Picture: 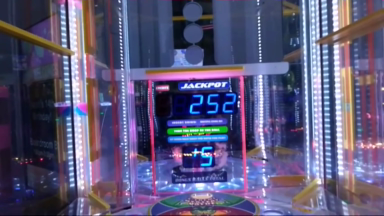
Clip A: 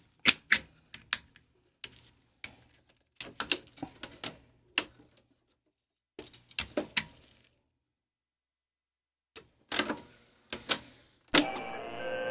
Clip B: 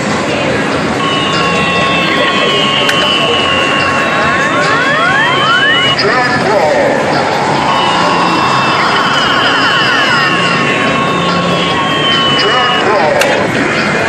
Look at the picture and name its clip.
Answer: B